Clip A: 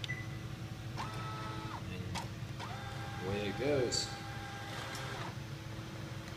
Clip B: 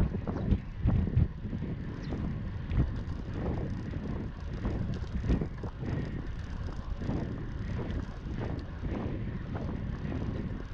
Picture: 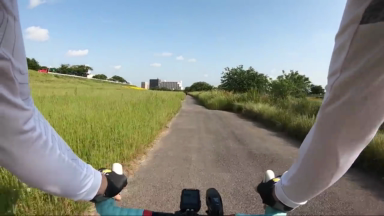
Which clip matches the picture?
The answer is B